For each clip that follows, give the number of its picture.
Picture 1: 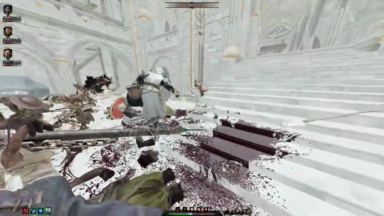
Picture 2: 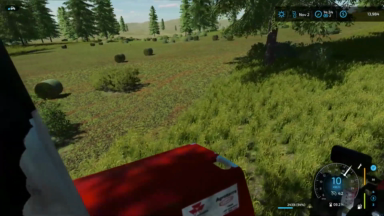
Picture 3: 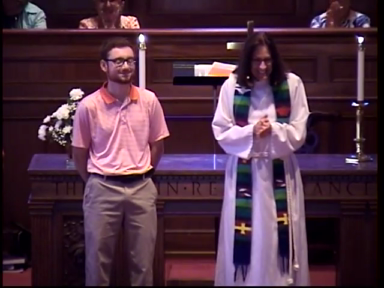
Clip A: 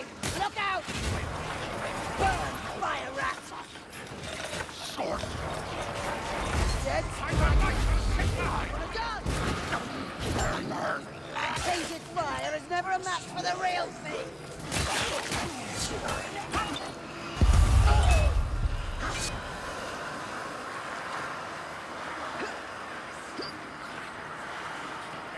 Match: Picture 1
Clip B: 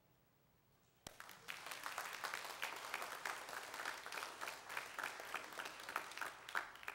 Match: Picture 3